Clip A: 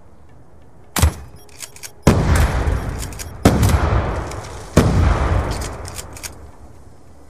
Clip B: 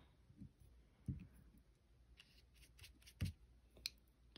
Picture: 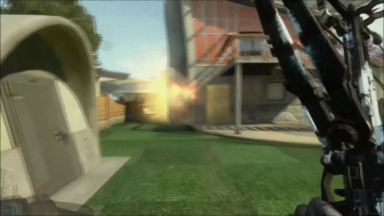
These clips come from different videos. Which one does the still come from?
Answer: A